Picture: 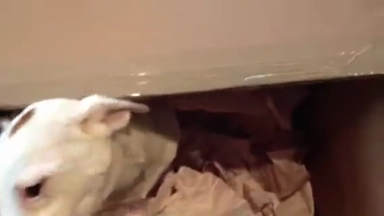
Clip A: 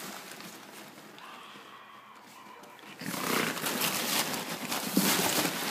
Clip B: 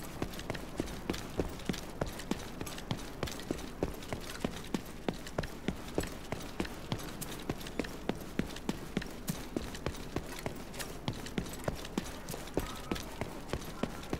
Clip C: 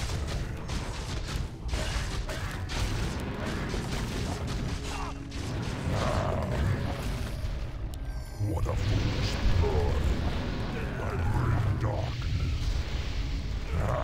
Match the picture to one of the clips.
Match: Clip A